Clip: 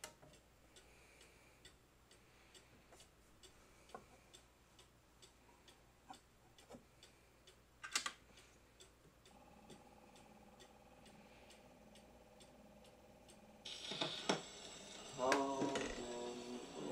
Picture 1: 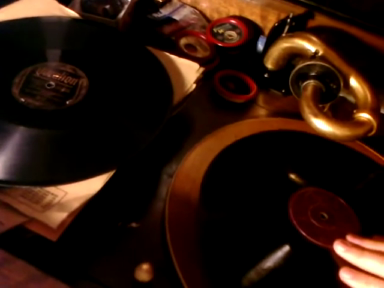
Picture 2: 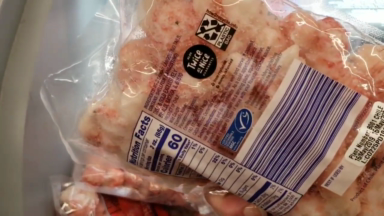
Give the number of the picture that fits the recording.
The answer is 1